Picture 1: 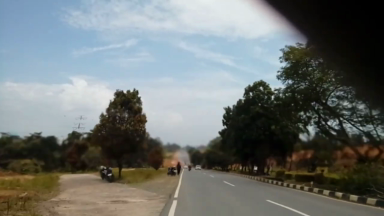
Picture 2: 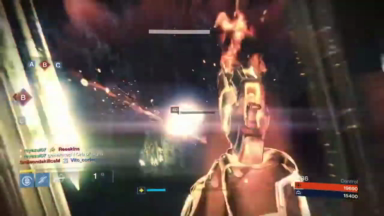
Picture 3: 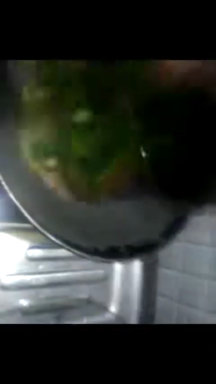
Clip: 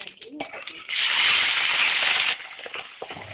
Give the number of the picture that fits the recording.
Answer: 3